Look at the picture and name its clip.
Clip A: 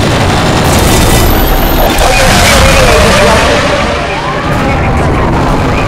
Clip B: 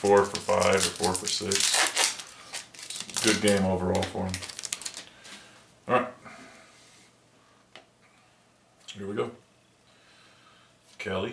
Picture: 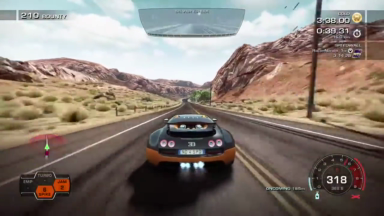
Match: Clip A